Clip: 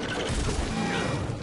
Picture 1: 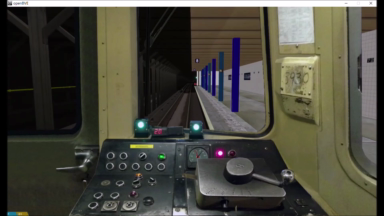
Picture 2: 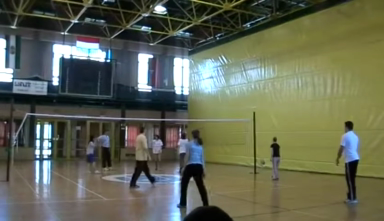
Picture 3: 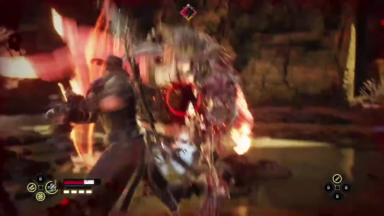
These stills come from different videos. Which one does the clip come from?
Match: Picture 3